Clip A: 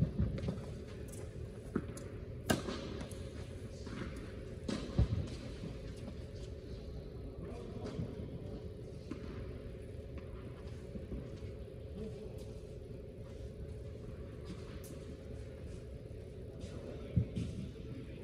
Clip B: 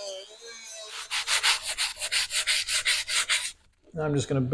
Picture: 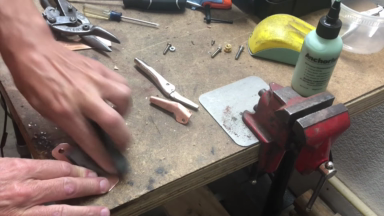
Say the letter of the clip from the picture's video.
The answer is B